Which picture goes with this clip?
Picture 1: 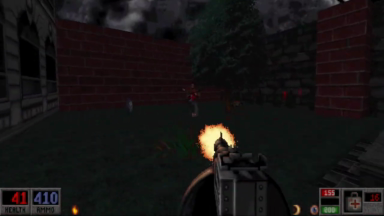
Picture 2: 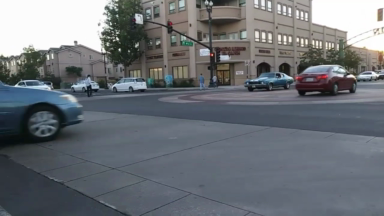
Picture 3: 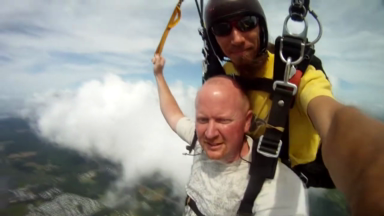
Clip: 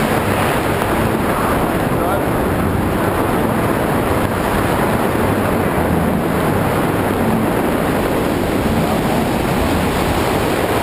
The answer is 3